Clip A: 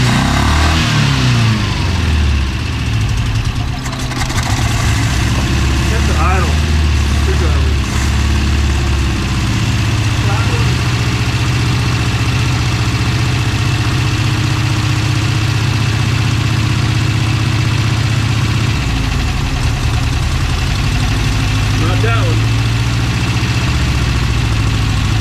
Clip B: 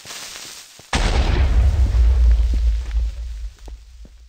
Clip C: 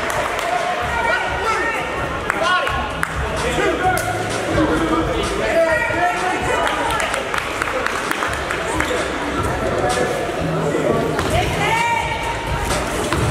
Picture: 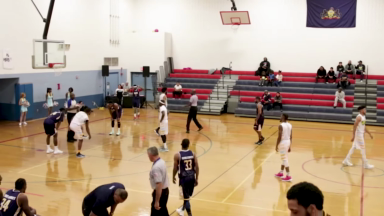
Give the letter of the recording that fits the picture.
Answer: C